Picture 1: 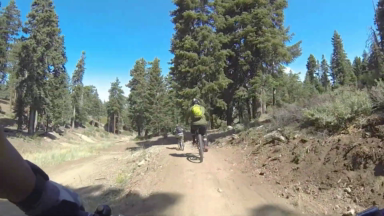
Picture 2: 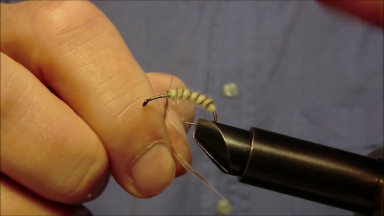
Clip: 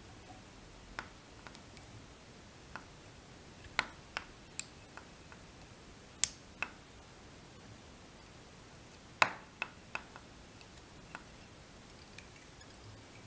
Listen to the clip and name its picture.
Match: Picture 2